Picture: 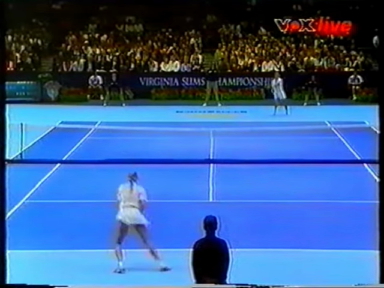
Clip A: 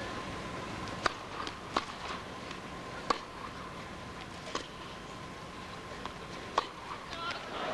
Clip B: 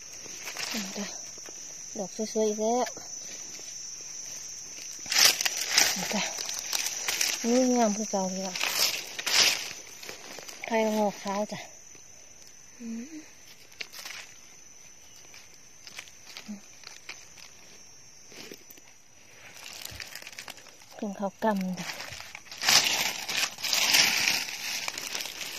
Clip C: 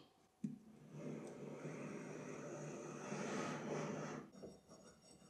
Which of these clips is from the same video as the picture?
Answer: A